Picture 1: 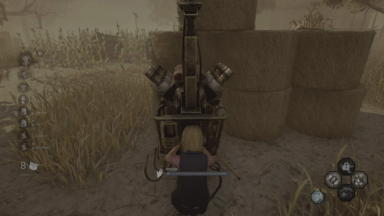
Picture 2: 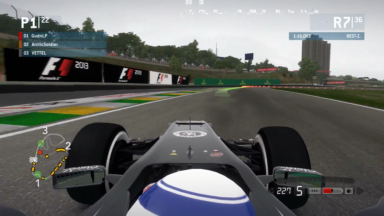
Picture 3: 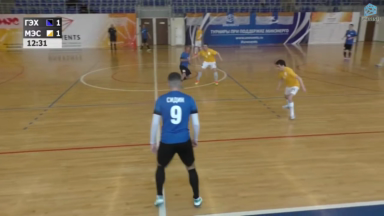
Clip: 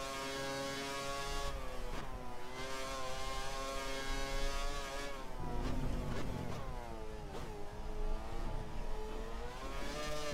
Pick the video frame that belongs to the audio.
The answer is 2